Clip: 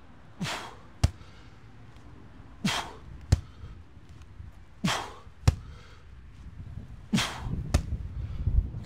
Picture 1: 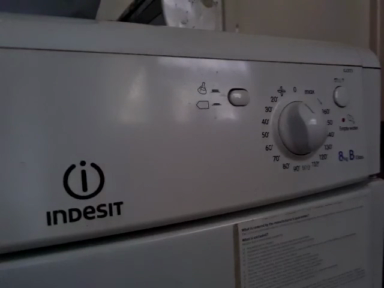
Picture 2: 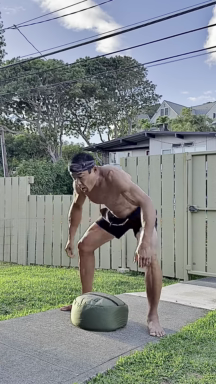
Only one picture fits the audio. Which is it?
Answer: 2